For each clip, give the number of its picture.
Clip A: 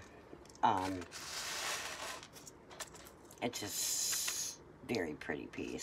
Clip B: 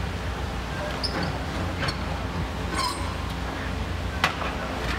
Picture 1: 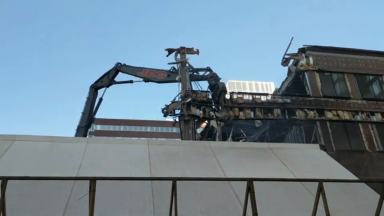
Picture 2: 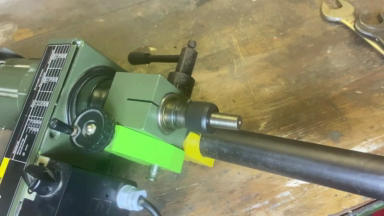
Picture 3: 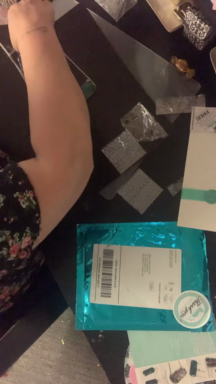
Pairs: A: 3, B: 1